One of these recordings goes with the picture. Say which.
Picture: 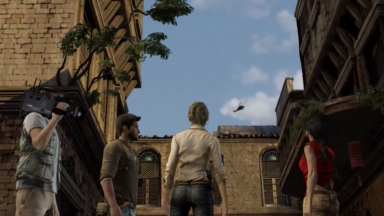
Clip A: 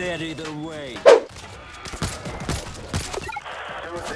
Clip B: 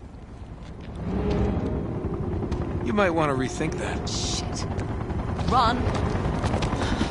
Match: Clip B